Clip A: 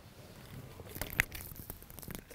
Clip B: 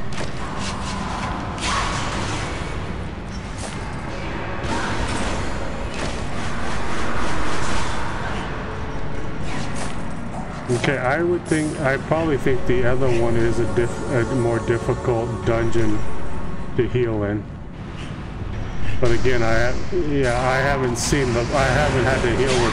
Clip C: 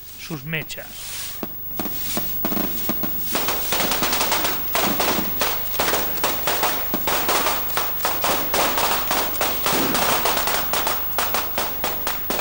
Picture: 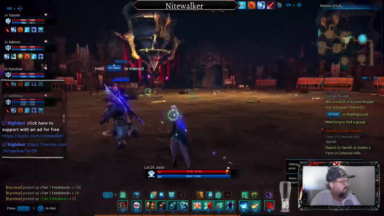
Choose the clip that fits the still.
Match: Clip B